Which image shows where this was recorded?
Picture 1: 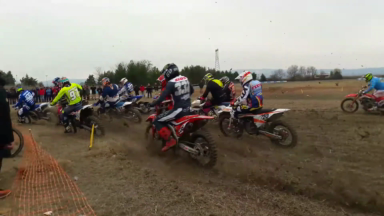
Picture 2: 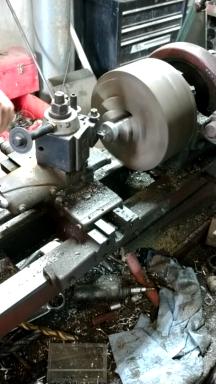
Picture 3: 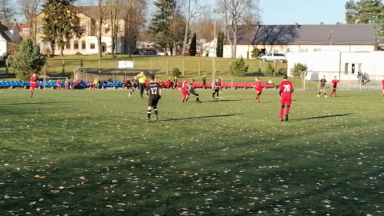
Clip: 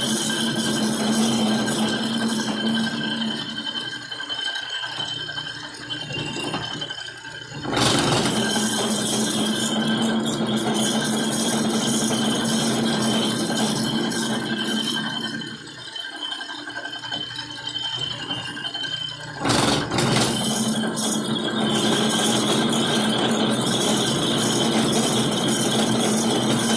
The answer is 2